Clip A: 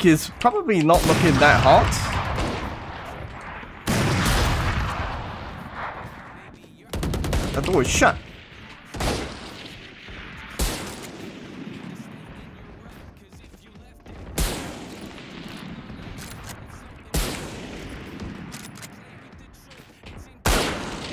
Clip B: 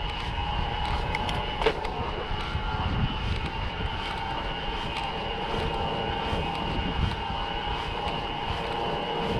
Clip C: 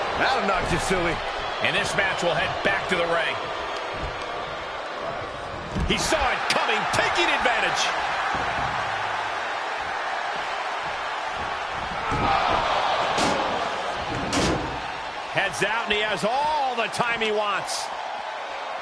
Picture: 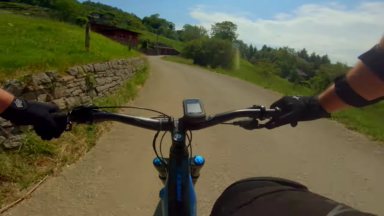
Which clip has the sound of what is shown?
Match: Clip B